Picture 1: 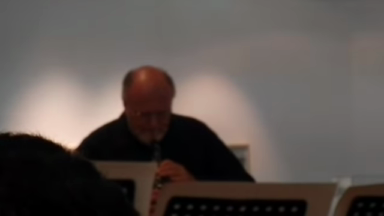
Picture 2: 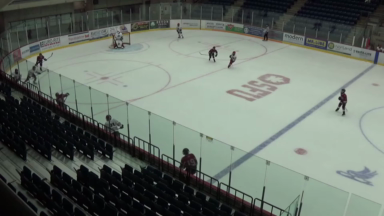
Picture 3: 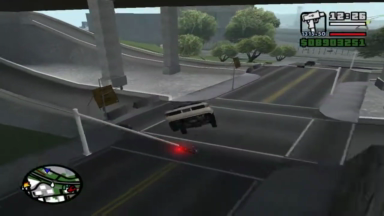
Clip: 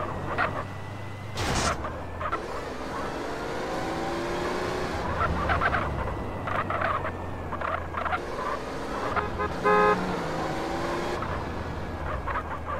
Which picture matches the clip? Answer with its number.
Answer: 3